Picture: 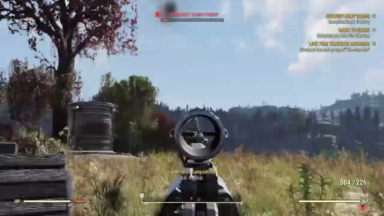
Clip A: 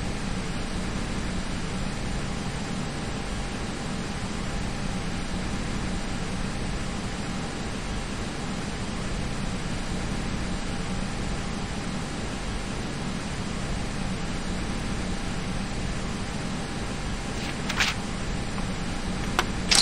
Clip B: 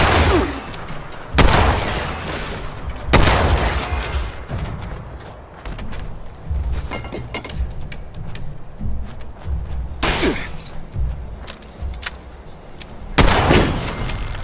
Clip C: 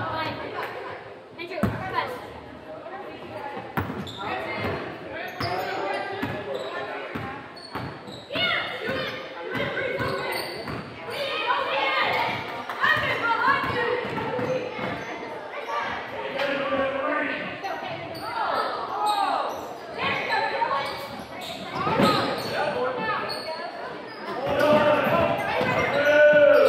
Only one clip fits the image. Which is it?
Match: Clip B